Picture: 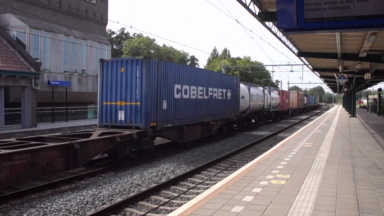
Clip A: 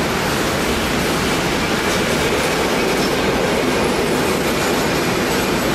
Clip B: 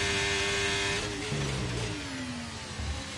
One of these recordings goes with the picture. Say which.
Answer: A